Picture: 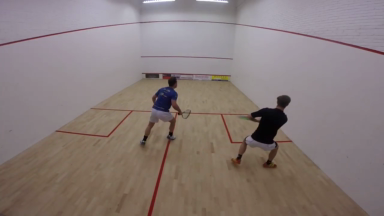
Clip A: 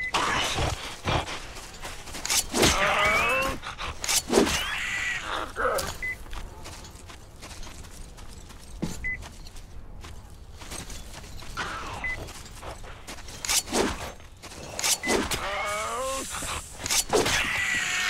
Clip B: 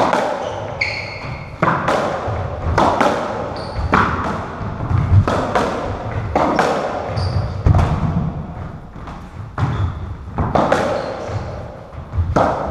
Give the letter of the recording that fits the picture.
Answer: B